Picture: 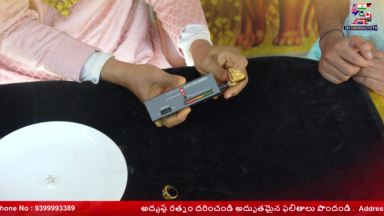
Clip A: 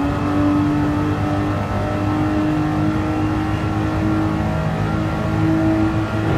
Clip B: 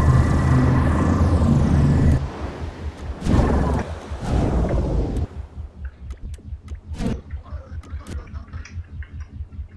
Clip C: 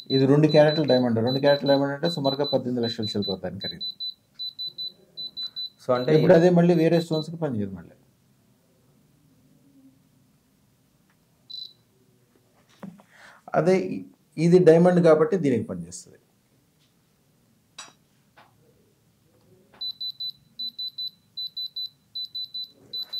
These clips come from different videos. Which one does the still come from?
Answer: C